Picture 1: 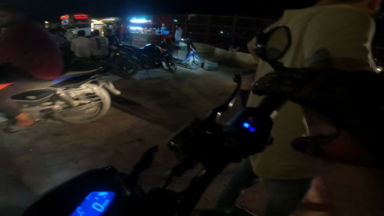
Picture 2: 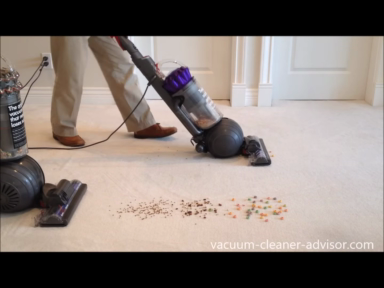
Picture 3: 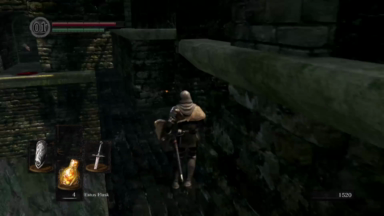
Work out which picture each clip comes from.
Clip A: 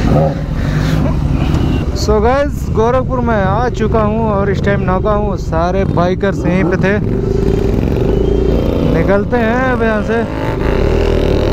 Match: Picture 1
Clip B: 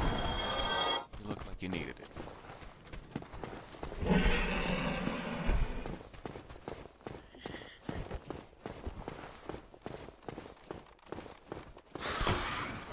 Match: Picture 3